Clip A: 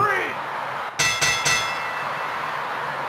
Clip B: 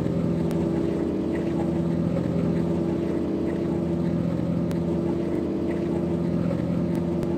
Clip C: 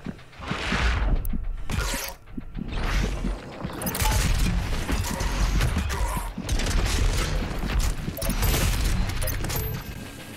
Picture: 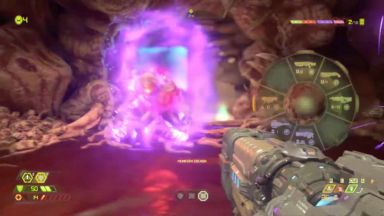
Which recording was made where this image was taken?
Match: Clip C